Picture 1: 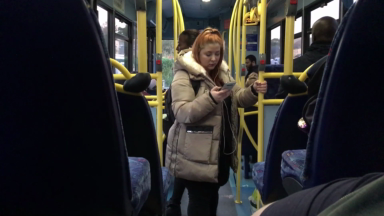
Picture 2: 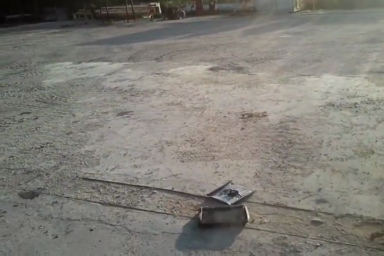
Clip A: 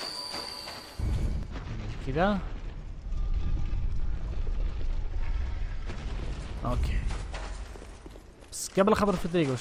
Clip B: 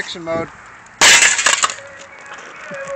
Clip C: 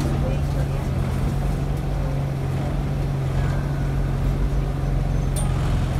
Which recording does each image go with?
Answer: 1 C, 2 B